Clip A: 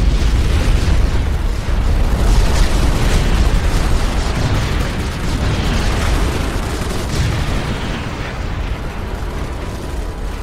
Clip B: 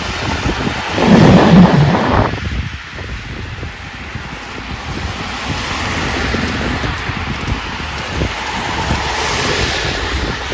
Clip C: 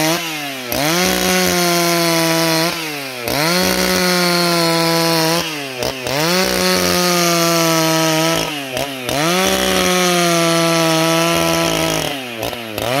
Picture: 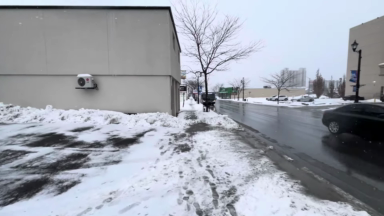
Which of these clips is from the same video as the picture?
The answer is B